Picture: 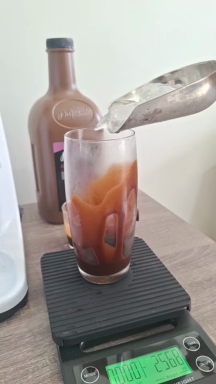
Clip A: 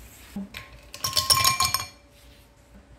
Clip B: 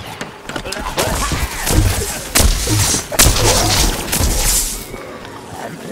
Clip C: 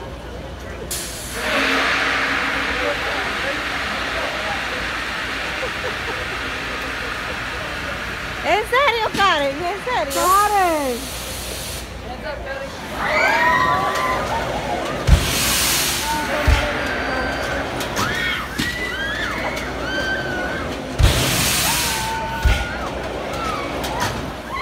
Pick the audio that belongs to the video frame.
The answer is A